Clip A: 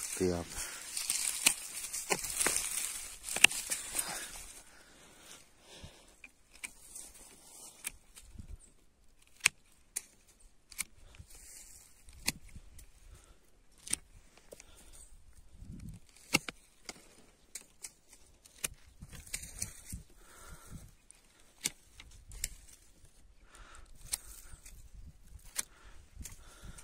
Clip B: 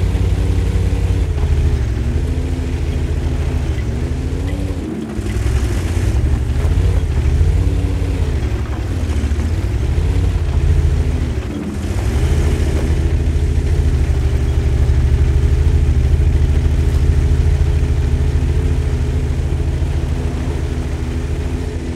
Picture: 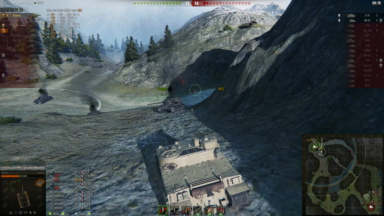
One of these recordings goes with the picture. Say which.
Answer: B